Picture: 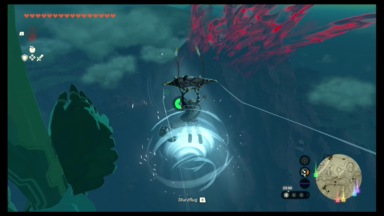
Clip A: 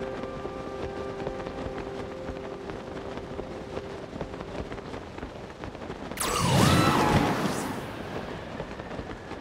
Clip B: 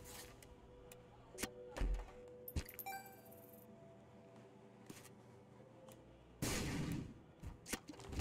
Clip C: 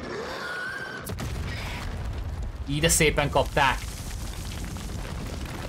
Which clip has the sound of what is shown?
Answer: A